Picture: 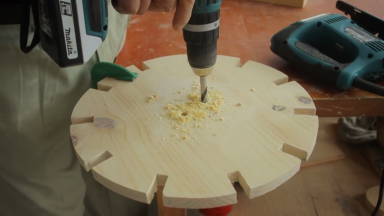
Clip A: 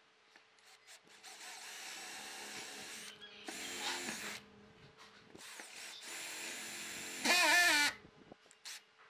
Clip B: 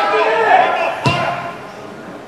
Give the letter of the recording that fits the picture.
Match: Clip A